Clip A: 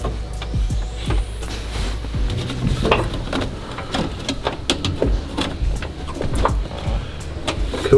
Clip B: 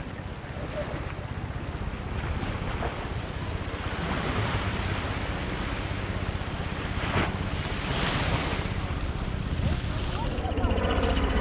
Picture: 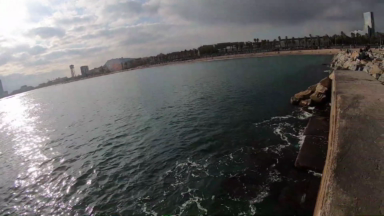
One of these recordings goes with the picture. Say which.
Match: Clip B